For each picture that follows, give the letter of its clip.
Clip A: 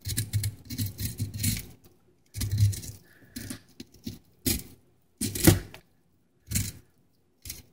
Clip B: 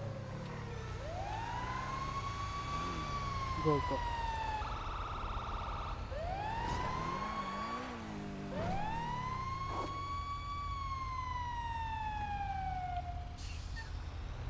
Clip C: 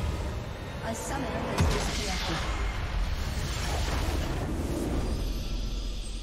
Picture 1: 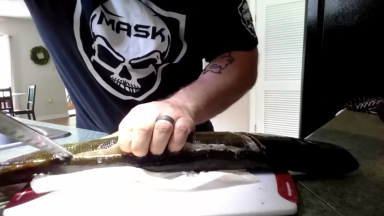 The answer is A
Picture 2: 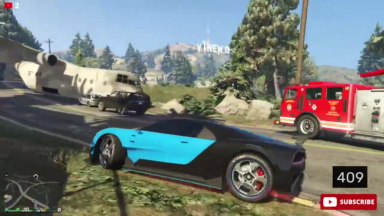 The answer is B